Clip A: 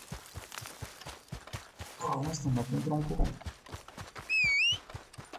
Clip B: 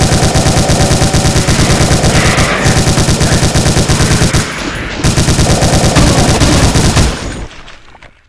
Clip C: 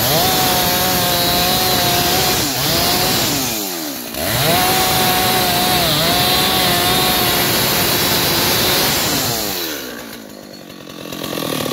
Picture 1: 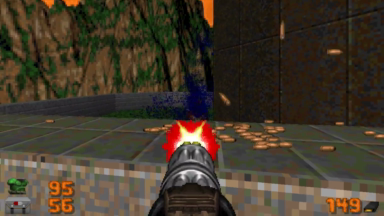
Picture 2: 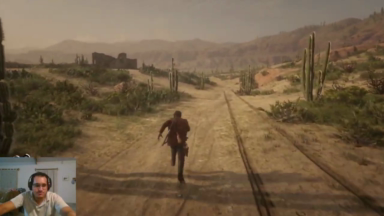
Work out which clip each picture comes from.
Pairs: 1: B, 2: A